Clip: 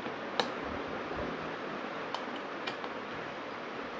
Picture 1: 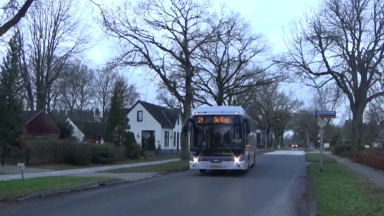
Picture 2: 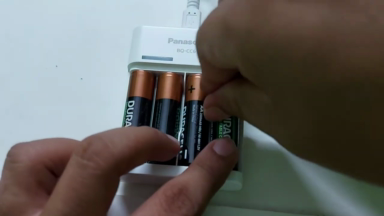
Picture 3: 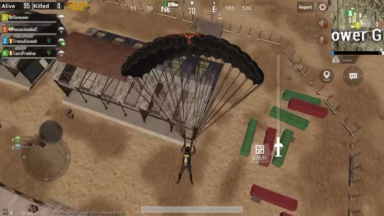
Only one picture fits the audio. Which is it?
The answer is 2